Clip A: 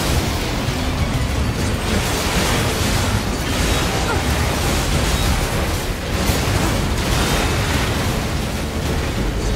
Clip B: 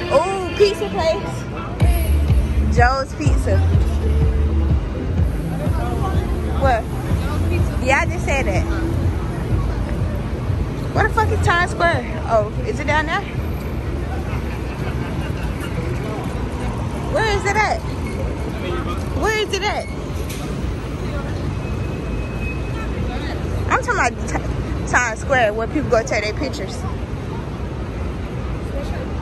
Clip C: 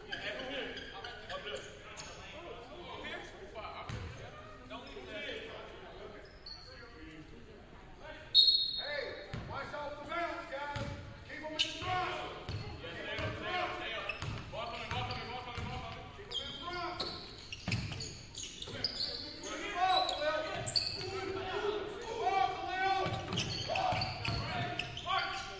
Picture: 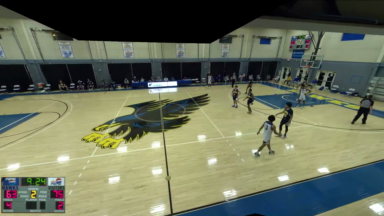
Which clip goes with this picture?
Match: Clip C